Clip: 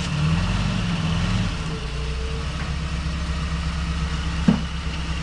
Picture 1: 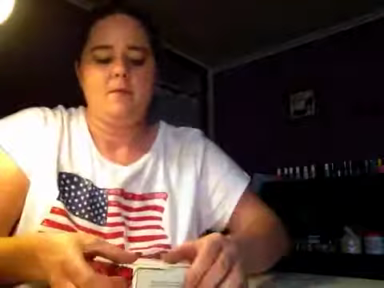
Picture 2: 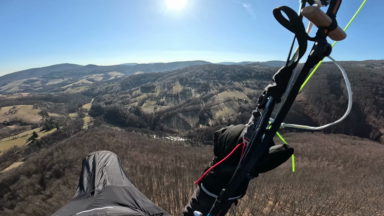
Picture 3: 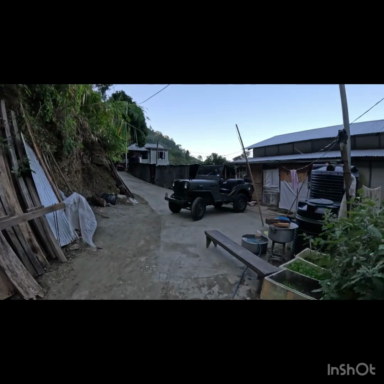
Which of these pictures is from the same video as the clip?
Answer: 3